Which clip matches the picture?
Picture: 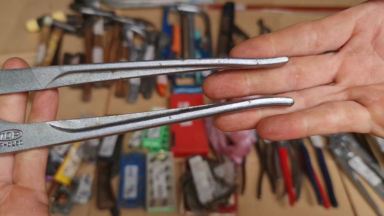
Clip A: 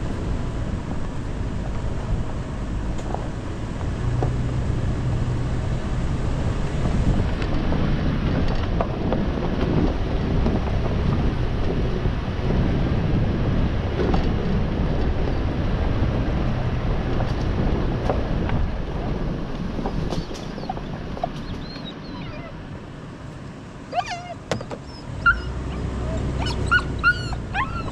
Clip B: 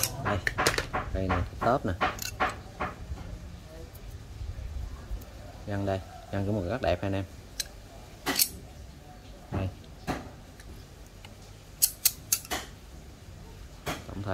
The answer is B